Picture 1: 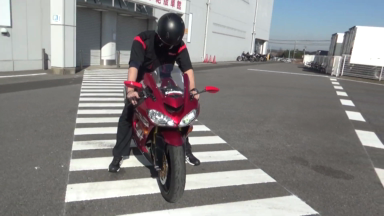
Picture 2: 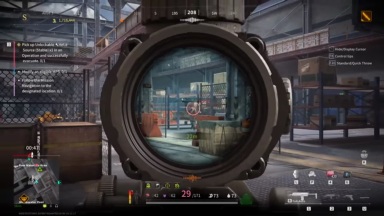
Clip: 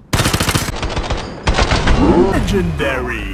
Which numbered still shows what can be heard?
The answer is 2